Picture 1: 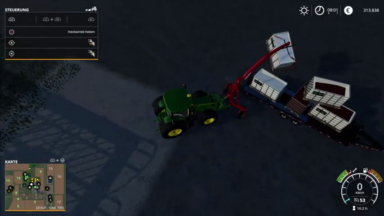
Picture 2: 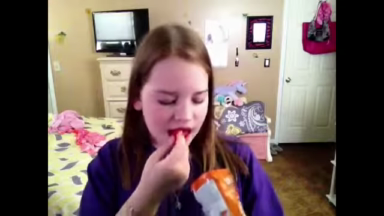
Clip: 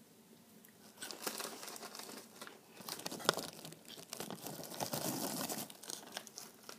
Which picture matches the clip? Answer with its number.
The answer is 2